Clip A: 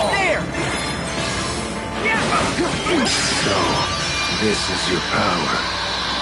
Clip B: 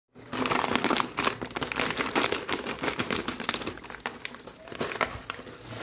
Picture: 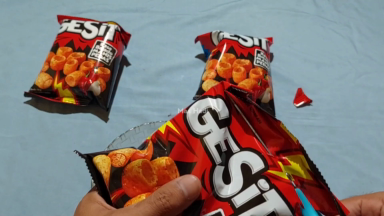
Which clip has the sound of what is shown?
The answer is B